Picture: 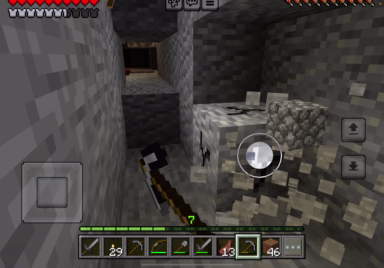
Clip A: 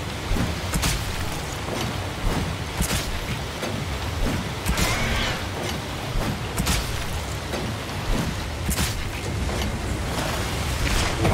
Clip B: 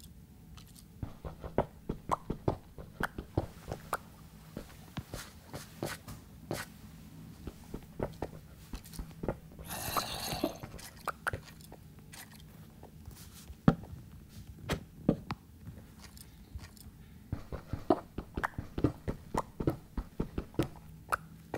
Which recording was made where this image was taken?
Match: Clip B